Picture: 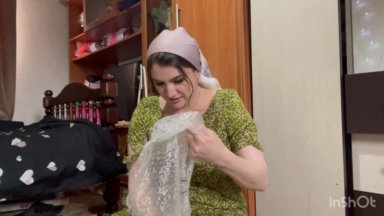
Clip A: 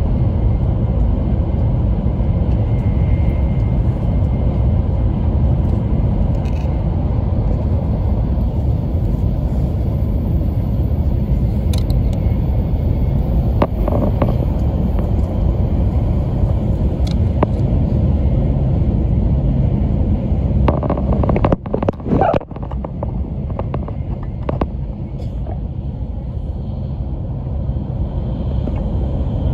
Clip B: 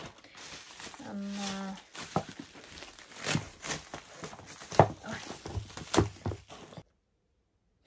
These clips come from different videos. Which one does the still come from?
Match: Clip B